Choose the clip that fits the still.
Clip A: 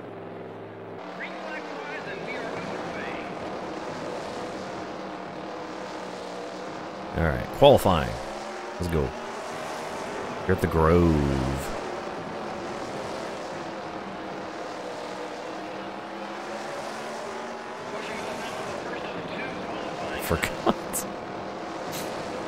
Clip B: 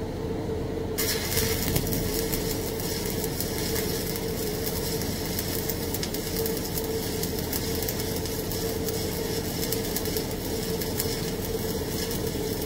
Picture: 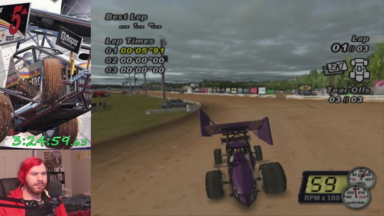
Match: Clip A